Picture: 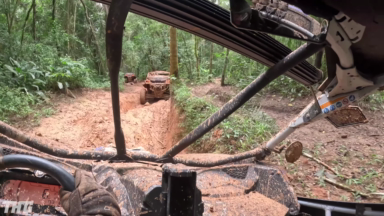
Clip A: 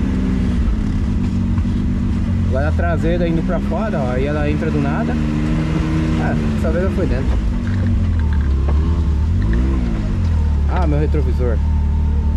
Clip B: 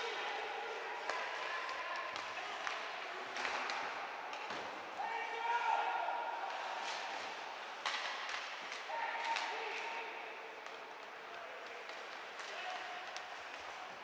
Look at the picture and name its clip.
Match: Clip A